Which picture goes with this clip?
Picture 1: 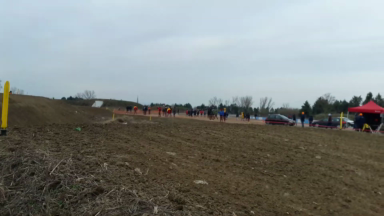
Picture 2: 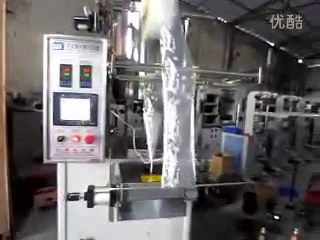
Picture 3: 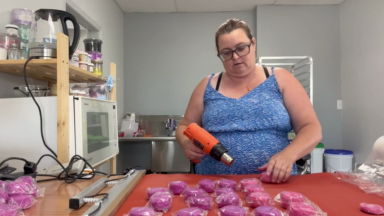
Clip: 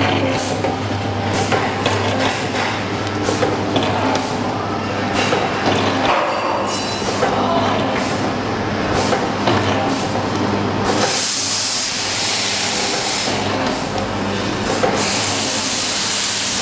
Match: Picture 2